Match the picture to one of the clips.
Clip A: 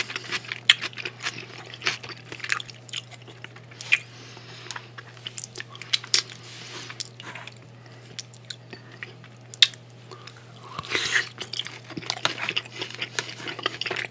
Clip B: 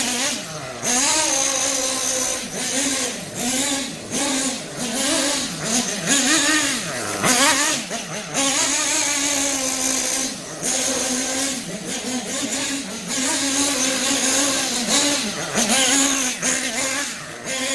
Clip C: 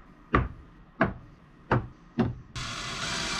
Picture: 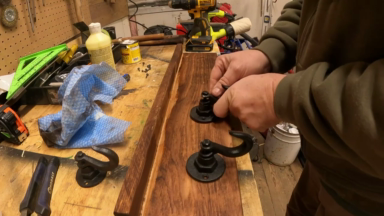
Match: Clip C